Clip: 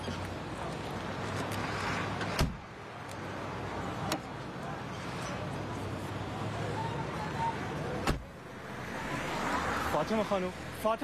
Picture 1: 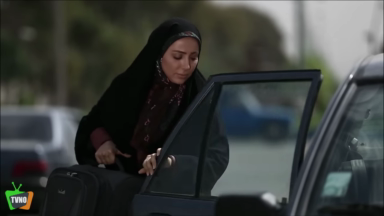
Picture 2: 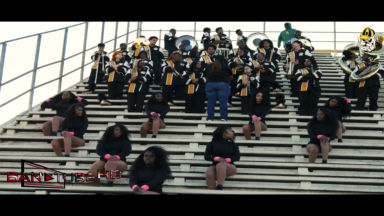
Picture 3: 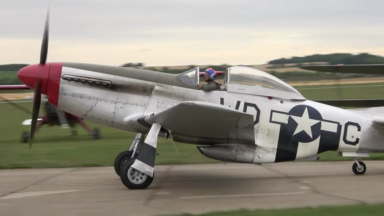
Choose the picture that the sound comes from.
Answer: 1